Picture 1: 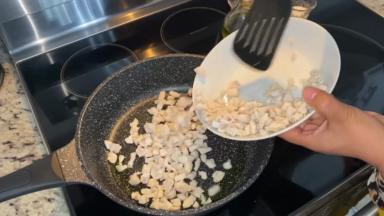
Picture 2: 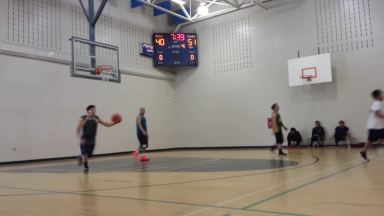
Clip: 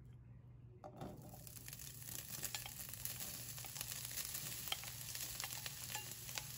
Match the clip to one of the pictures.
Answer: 1